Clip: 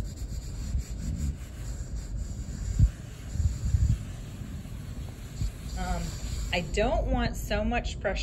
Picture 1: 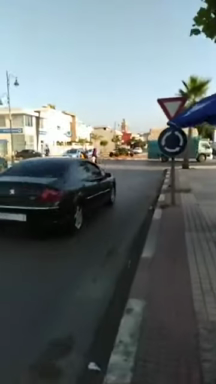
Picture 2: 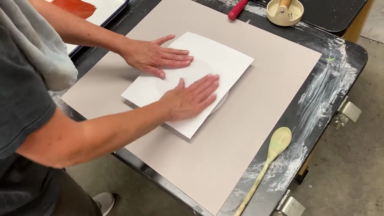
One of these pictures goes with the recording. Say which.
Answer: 2